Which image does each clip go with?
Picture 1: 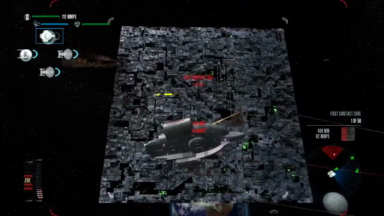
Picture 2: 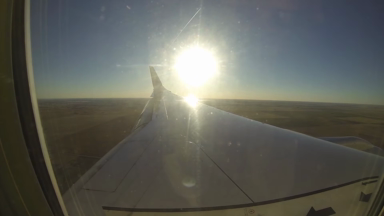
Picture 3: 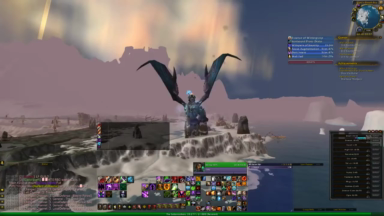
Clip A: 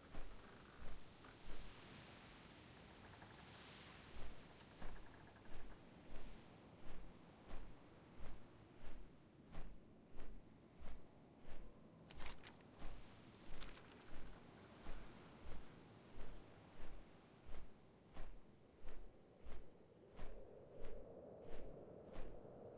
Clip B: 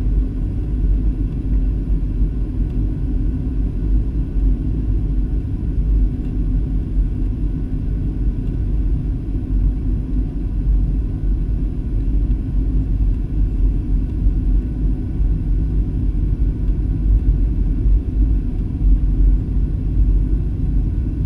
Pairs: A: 3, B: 2